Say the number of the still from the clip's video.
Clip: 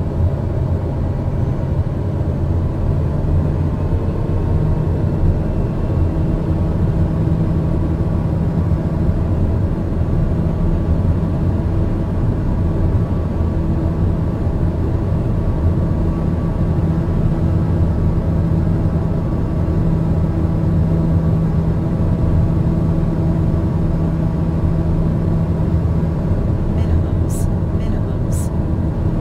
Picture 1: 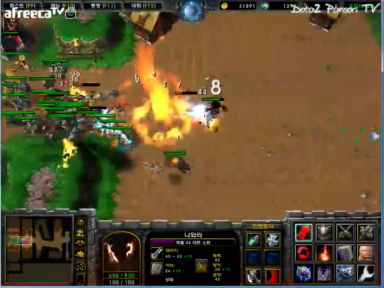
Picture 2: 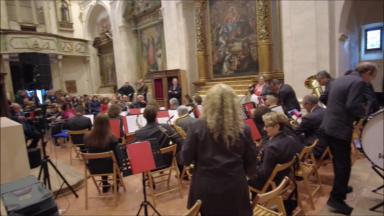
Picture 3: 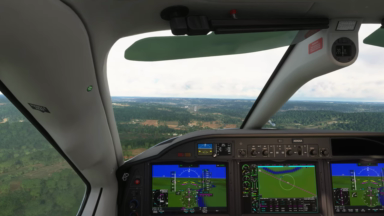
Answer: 3